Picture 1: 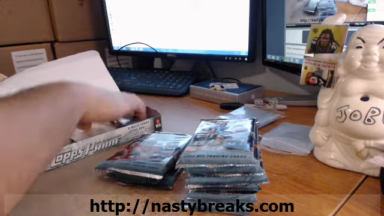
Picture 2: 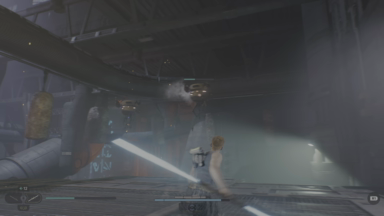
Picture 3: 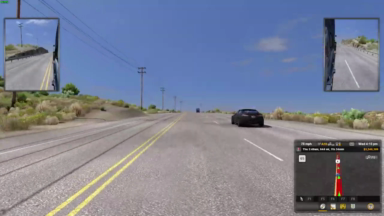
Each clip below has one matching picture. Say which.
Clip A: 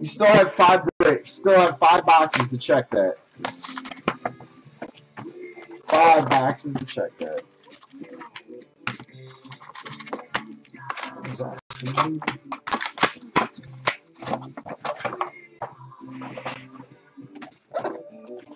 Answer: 1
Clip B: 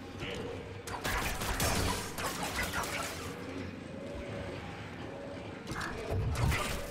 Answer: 2